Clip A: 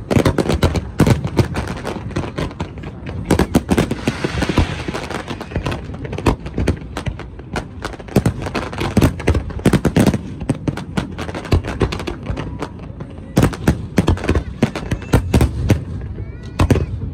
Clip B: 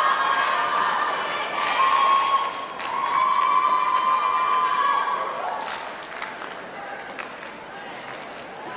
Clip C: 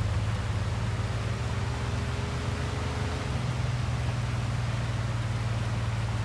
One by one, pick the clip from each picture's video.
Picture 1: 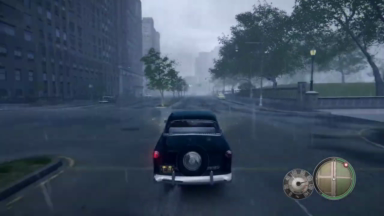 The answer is C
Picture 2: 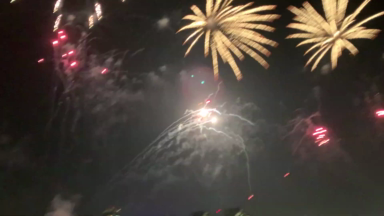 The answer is A